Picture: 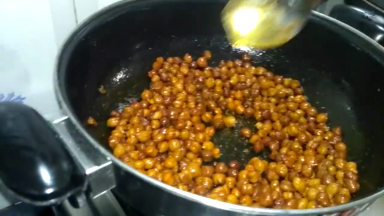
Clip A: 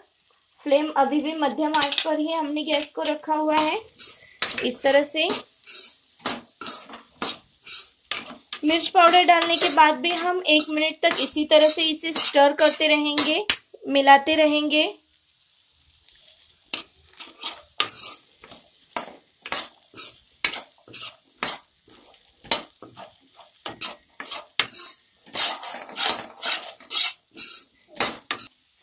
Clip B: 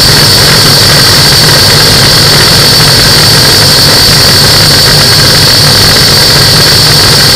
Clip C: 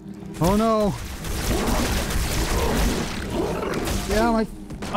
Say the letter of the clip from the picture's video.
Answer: A